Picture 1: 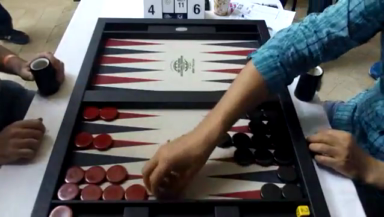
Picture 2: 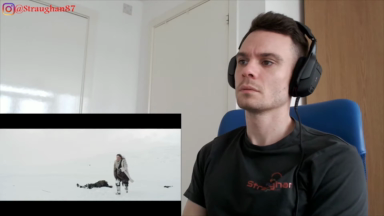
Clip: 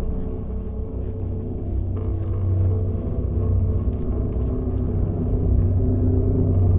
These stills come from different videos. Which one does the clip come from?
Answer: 2